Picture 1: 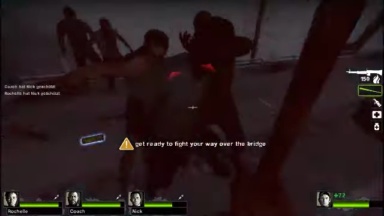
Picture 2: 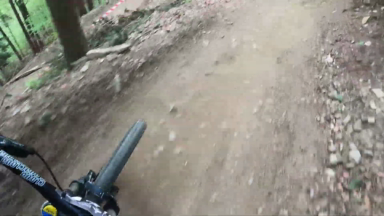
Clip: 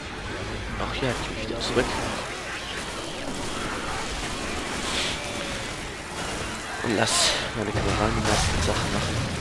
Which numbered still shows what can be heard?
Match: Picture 1